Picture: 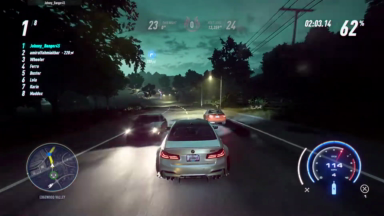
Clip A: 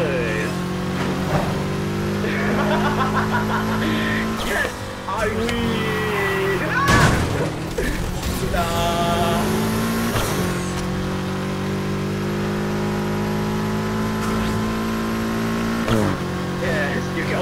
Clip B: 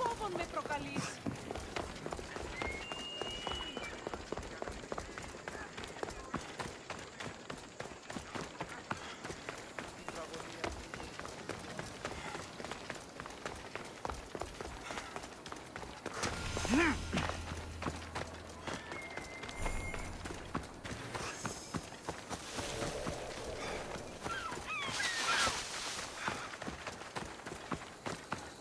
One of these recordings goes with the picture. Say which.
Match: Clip A